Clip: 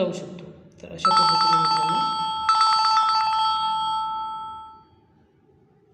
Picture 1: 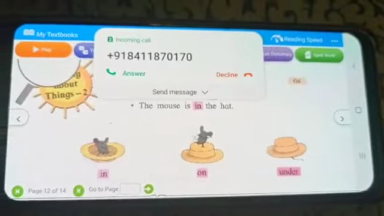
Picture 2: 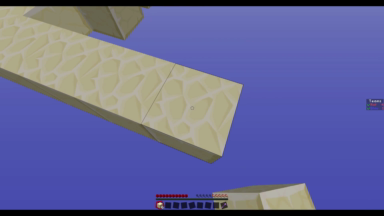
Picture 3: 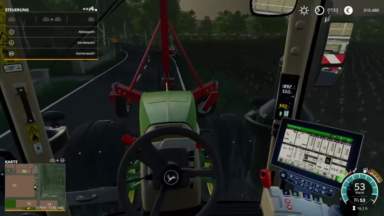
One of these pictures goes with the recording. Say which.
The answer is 1